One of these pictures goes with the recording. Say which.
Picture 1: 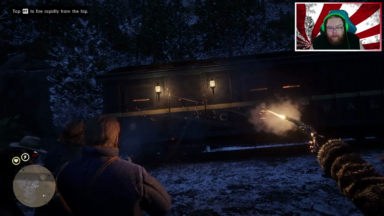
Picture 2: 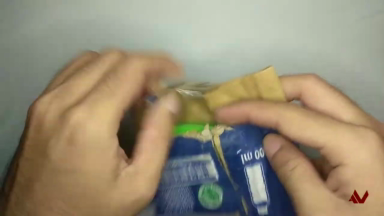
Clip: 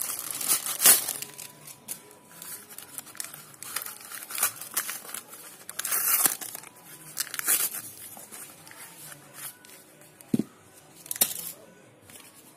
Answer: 2